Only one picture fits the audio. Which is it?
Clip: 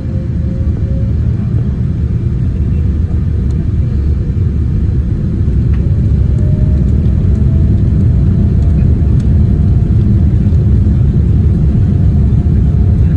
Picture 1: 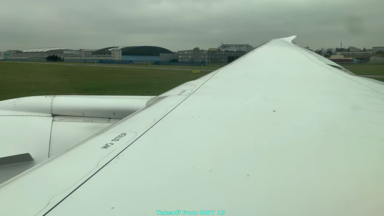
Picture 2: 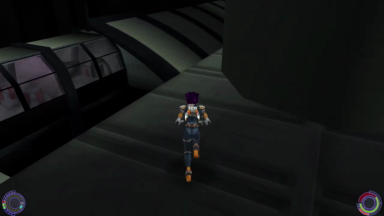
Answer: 1